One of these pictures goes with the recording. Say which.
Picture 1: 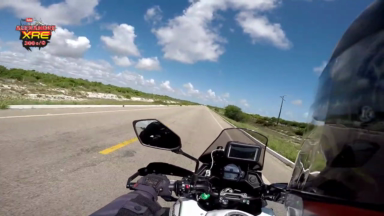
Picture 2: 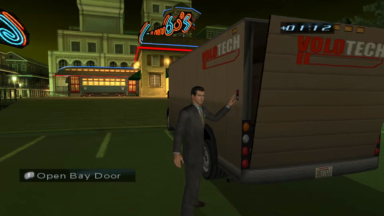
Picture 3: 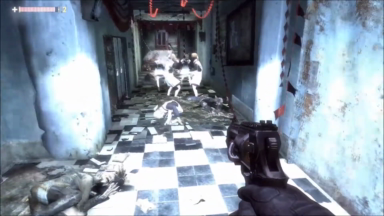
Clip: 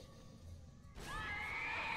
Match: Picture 3